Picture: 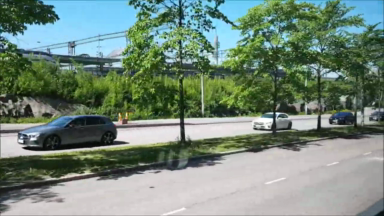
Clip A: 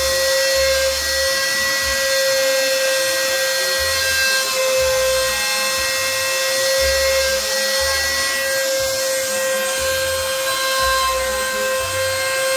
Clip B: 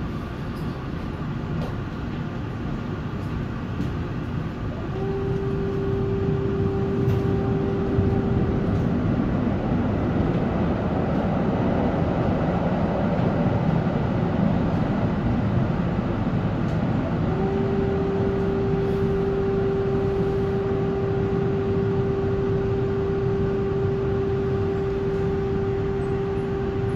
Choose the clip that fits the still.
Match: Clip B